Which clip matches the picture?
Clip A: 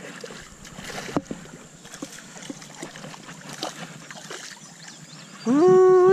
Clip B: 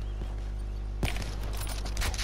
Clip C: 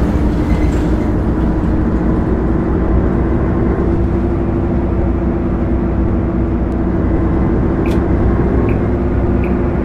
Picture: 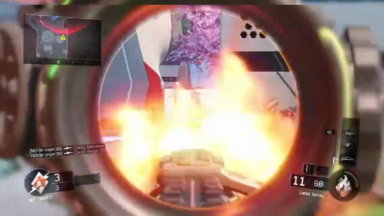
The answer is B